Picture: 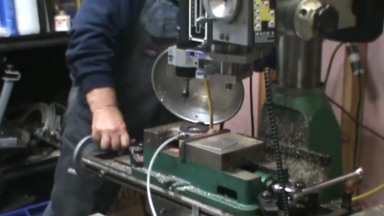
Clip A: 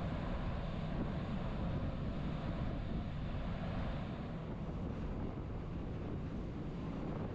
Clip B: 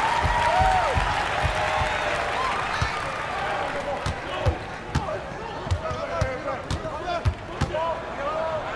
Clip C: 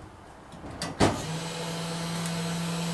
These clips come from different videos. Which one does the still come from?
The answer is C